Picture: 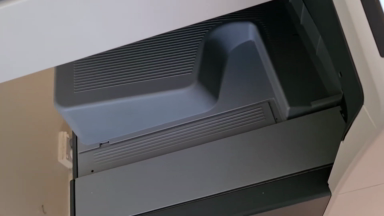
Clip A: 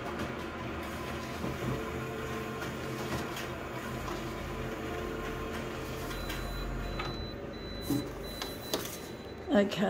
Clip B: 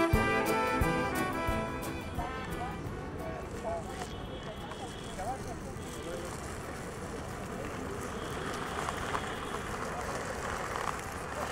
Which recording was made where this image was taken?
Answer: A